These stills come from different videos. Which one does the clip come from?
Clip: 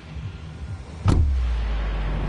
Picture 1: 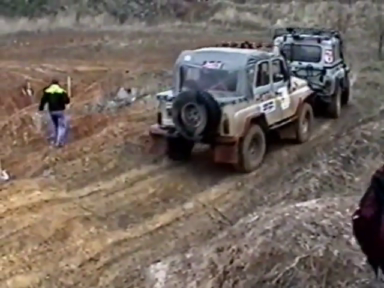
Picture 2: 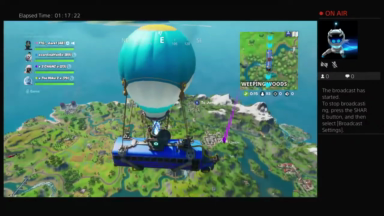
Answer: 2